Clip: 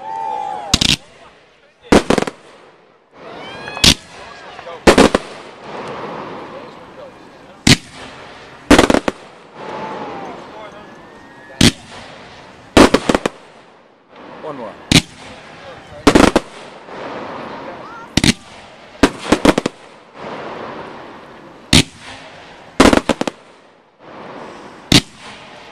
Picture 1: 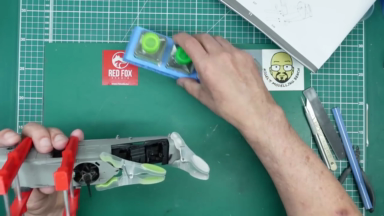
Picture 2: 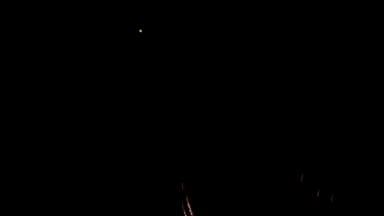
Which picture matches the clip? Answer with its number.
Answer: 2